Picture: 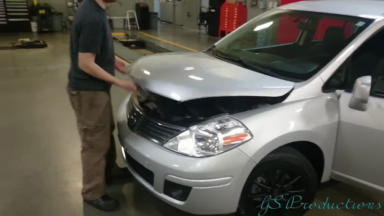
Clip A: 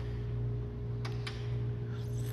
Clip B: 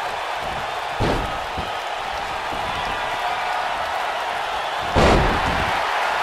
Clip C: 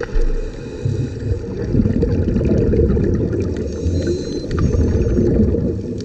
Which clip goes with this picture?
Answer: A